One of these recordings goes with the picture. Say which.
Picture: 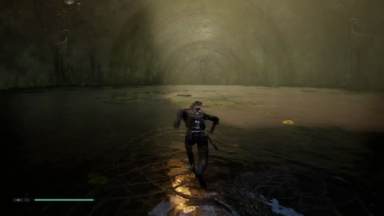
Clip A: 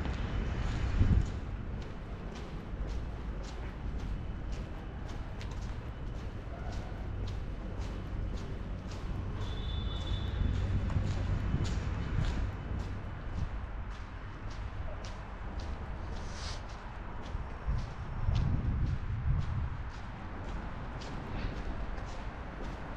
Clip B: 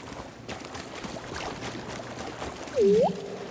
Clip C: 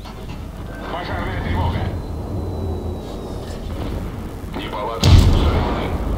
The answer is B